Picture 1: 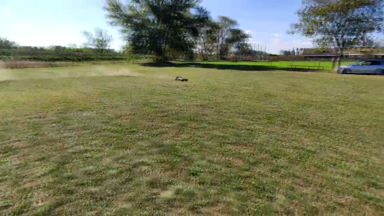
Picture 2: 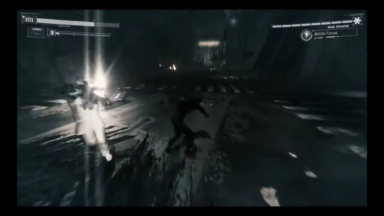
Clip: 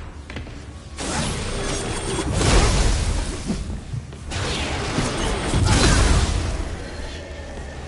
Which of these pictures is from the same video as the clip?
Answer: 2